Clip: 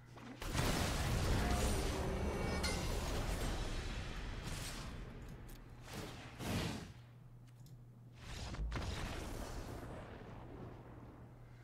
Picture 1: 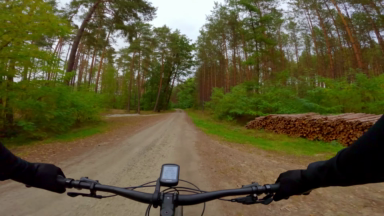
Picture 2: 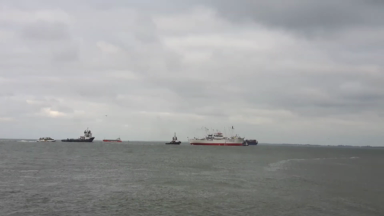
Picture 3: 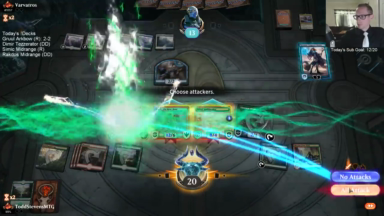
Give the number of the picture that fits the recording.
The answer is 3